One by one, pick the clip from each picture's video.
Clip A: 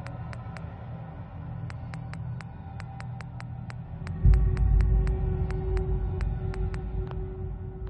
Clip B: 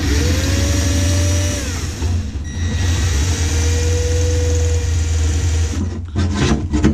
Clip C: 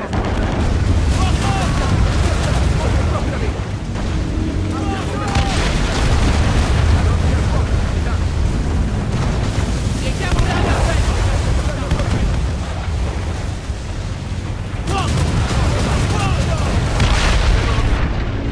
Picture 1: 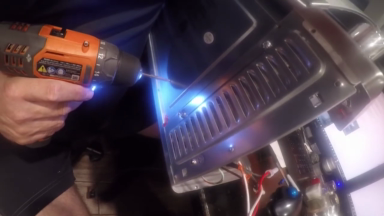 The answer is B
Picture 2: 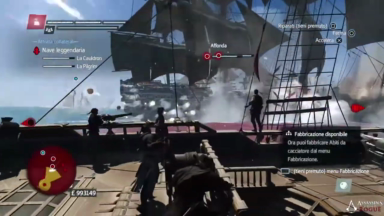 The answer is C